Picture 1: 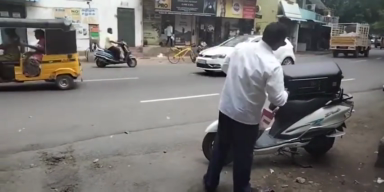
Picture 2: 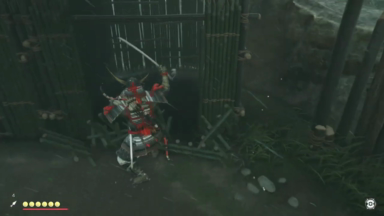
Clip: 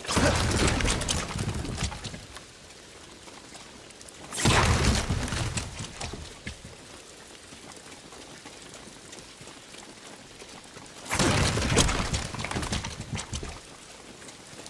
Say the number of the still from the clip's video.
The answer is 2